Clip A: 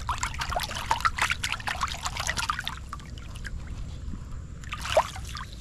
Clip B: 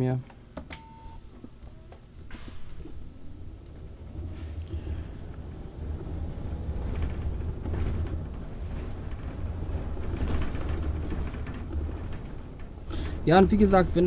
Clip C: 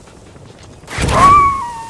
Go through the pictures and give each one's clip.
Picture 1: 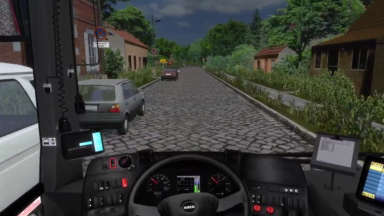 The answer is B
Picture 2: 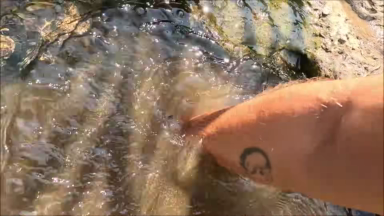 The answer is A